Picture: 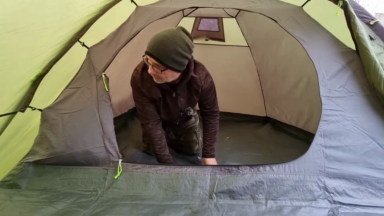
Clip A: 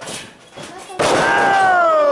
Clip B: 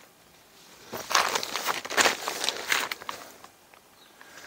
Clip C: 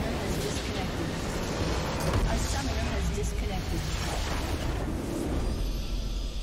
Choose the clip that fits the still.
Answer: B